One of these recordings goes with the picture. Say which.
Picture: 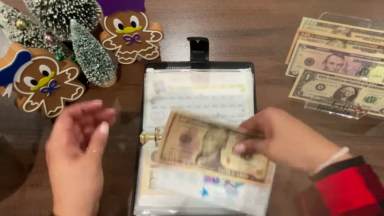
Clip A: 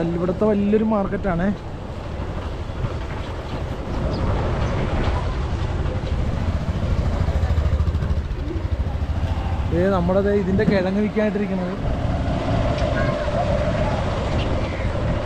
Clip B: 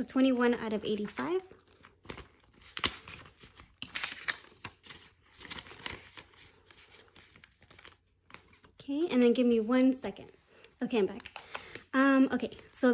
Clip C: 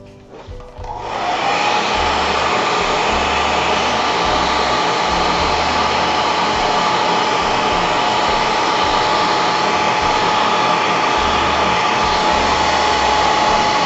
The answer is B